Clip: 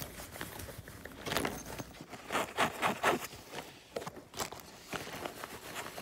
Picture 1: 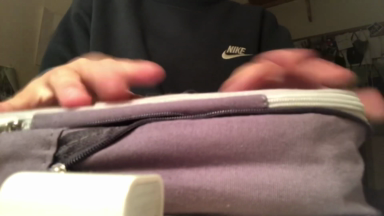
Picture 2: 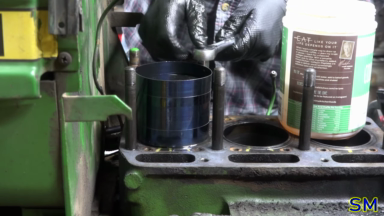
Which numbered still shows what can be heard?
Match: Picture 1